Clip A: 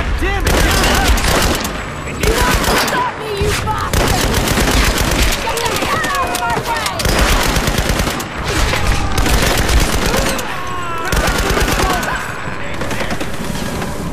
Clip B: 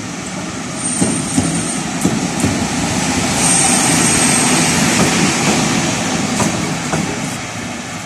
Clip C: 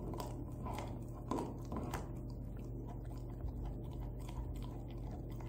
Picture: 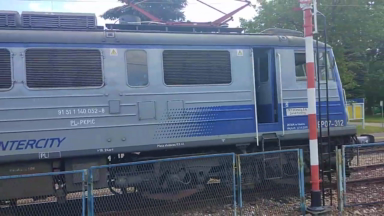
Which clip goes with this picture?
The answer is B